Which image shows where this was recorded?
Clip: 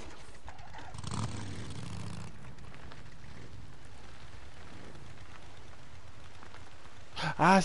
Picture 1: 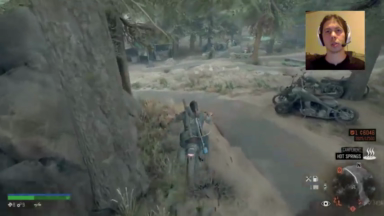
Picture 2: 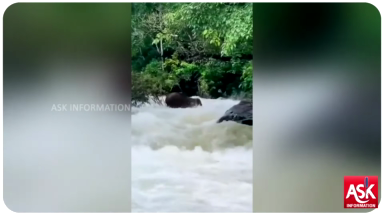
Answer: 1